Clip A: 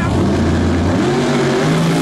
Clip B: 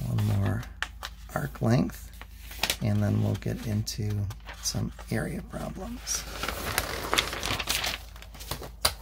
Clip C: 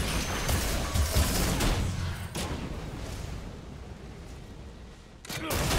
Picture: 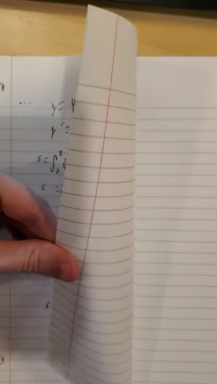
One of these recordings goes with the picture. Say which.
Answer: B